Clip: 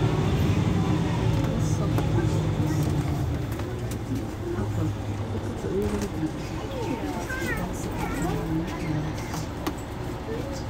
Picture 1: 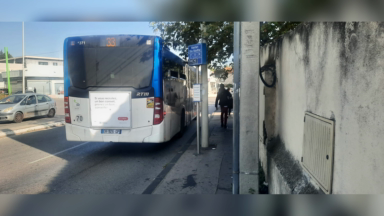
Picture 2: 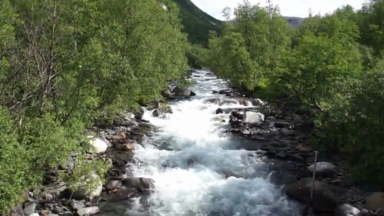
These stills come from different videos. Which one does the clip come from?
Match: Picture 1